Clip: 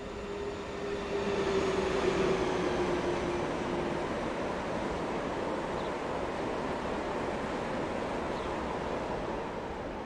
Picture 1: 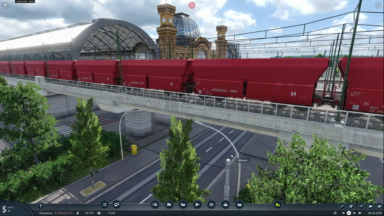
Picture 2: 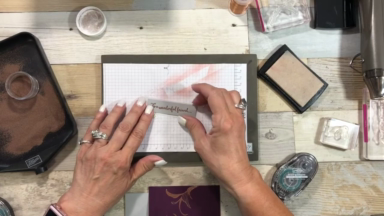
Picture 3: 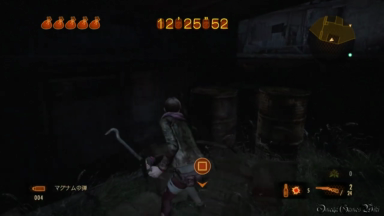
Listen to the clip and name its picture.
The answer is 1